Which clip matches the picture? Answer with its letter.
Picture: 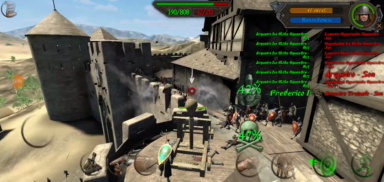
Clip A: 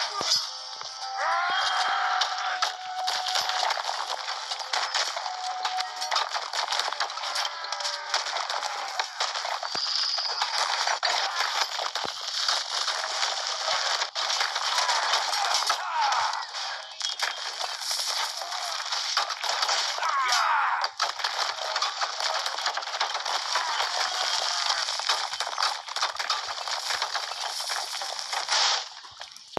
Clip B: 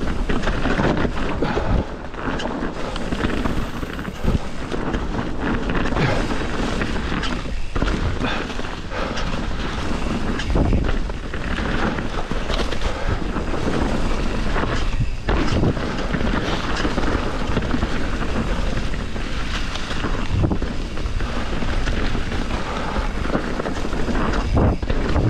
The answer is A